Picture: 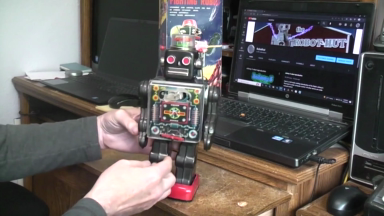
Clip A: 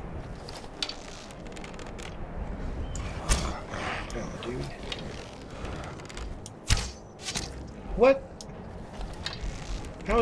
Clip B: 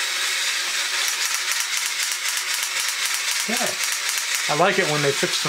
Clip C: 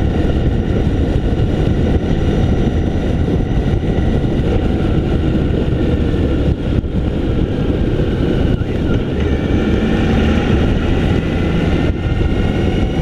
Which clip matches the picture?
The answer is B